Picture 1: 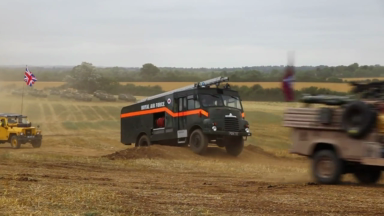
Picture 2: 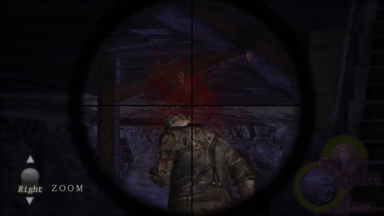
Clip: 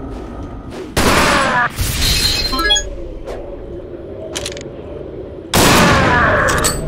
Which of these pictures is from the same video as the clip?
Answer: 2